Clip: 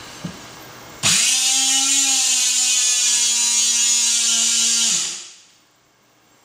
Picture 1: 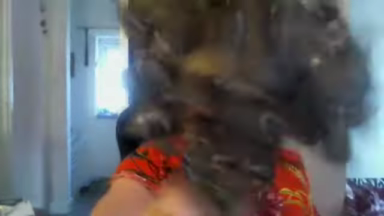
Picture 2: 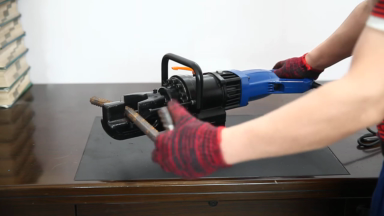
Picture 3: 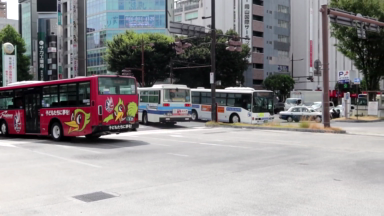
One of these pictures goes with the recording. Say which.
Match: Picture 2